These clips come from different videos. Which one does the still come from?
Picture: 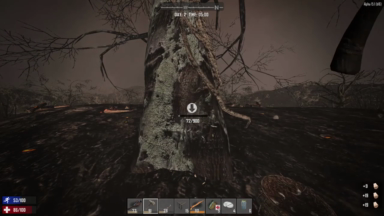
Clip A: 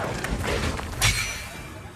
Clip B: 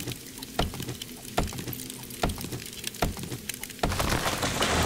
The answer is B